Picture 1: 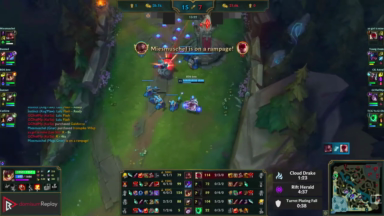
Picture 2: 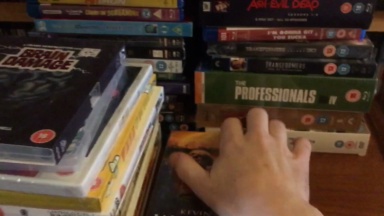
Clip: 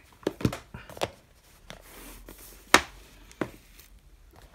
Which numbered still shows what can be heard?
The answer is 2